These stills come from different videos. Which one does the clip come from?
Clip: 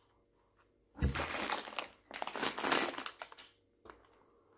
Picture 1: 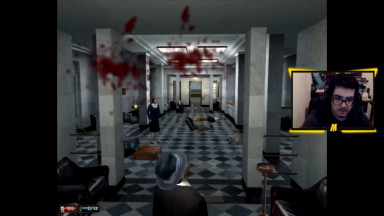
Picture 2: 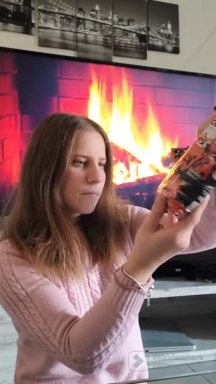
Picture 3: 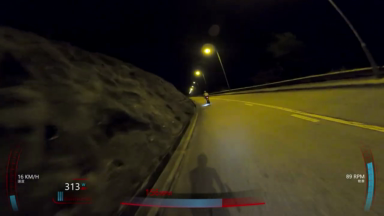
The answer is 2